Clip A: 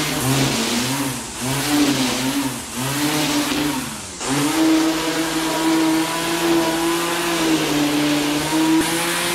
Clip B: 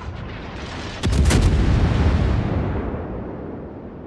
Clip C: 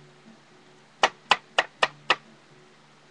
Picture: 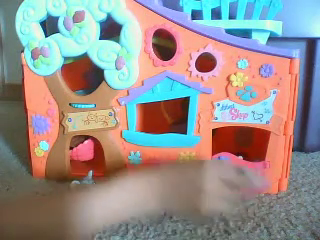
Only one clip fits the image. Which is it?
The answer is C